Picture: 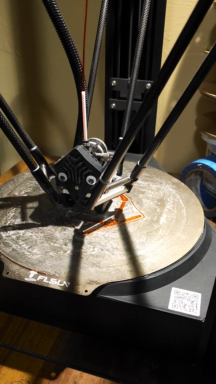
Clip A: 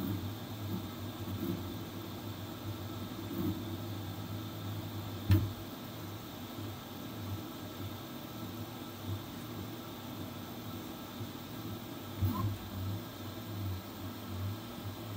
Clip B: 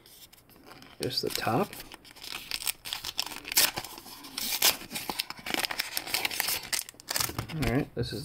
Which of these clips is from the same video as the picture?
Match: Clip A